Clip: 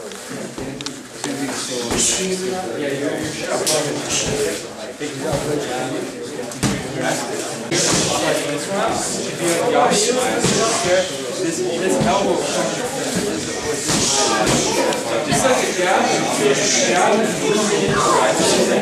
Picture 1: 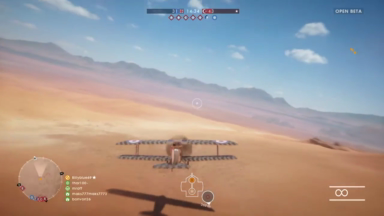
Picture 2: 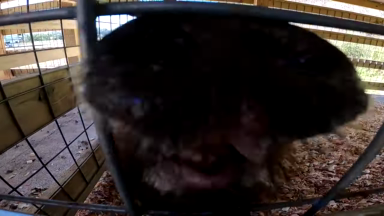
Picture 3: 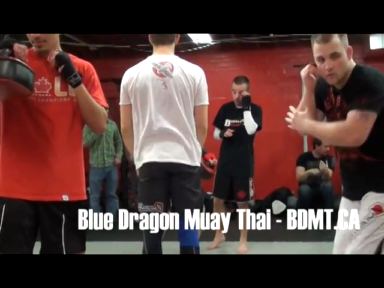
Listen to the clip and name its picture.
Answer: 3